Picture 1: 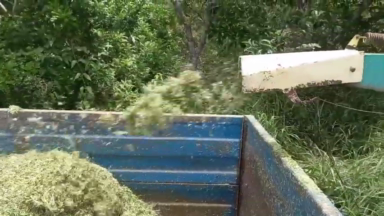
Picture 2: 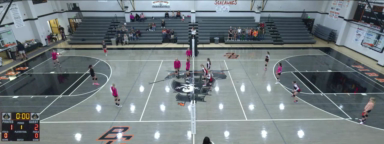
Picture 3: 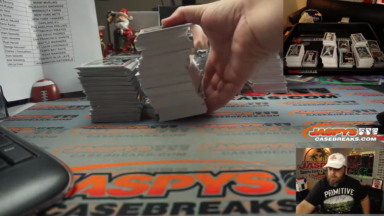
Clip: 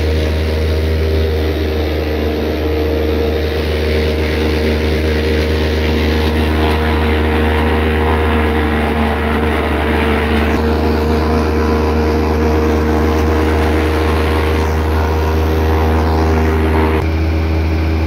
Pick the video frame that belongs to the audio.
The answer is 1